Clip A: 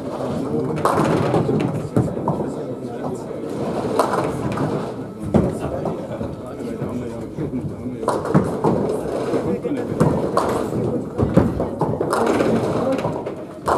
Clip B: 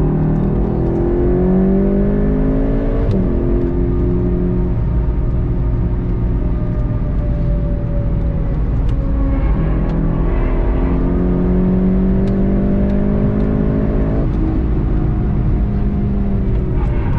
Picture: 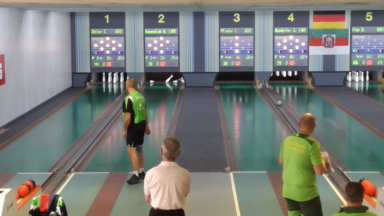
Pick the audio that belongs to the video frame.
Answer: A